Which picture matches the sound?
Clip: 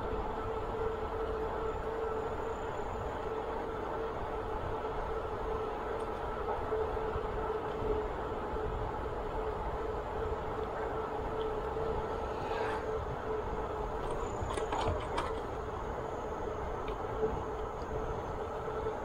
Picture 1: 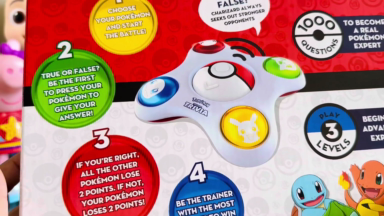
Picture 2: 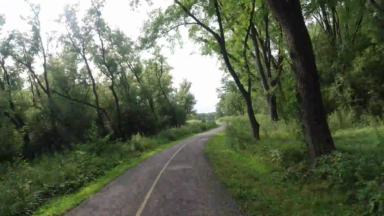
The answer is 2